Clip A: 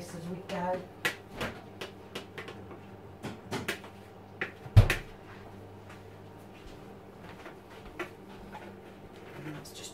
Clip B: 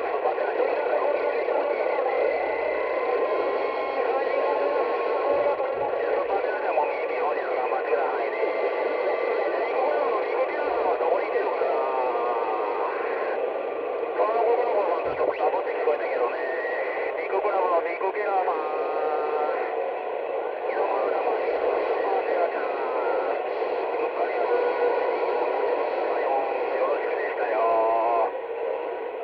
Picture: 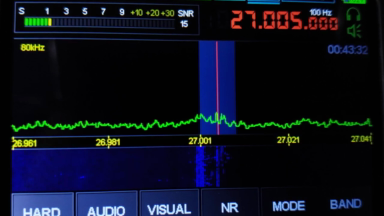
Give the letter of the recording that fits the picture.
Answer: B